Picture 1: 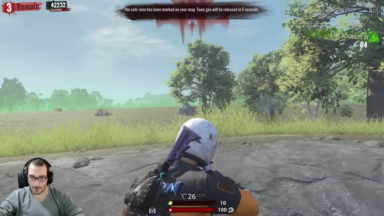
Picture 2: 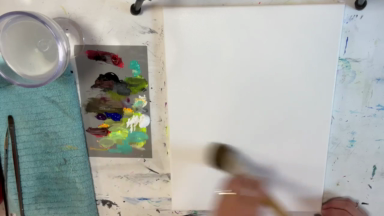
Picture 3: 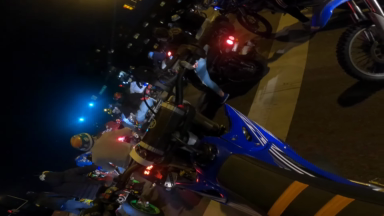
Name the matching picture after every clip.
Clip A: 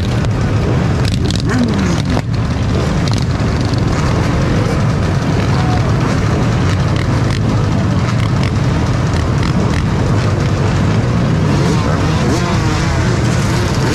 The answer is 3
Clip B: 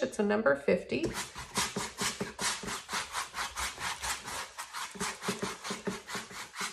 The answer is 2